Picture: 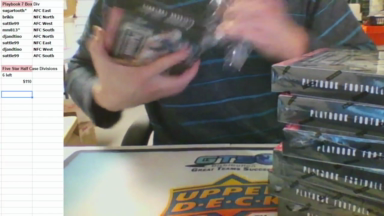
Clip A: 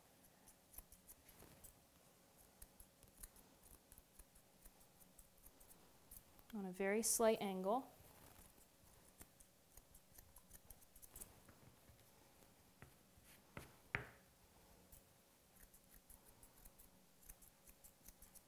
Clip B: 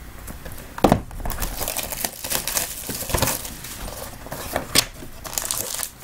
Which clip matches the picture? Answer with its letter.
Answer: B